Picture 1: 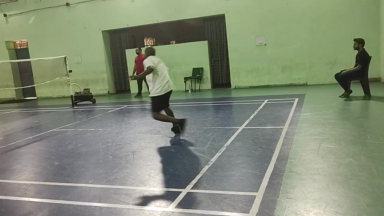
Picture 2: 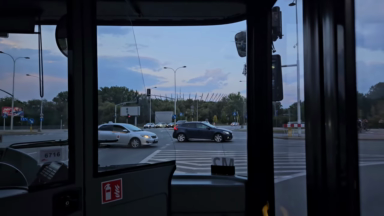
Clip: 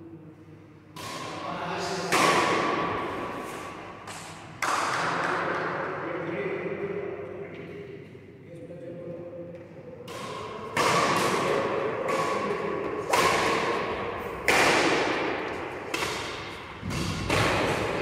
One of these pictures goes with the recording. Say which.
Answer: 1